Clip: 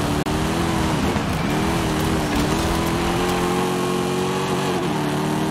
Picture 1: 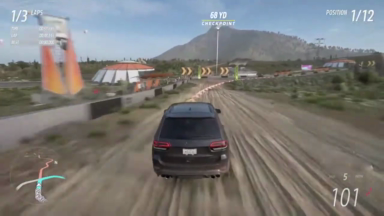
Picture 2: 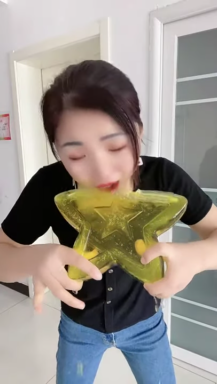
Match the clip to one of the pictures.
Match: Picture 1